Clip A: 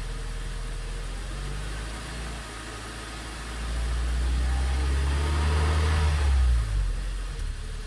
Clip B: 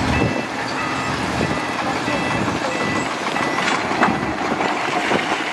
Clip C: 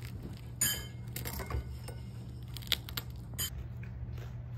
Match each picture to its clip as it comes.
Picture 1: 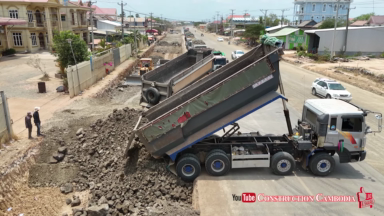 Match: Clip B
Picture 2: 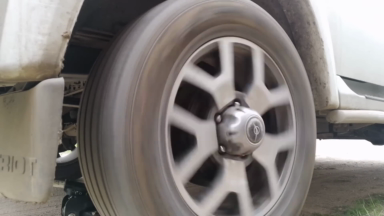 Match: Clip A